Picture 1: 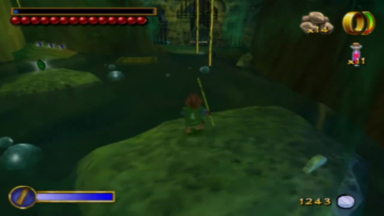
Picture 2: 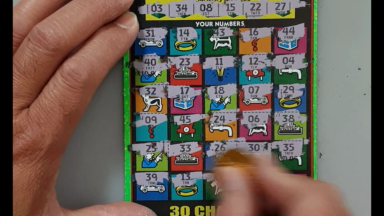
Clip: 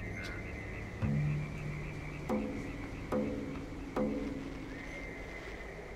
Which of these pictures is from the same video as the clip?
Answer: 1